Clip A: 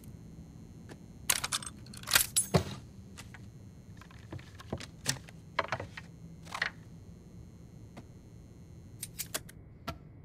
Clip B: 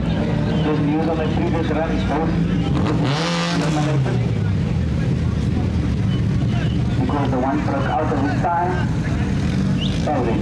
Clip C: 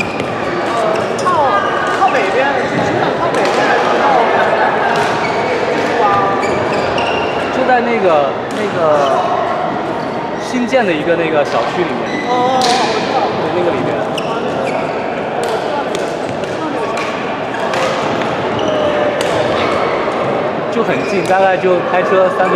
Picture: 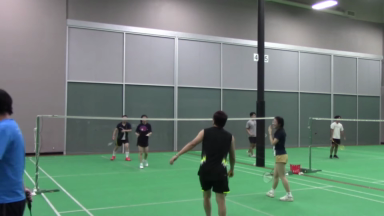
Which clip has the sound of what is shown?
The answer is C